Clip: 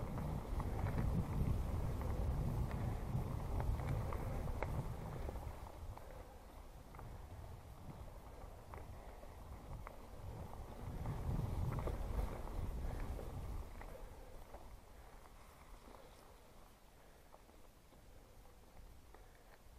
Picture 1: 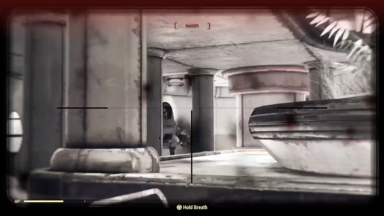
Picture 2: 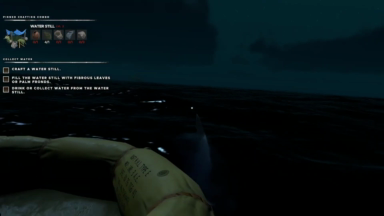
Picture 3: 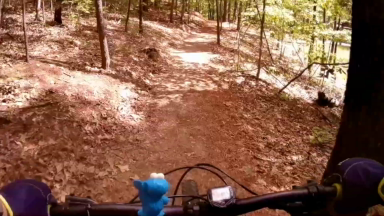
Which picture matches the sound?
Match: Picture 3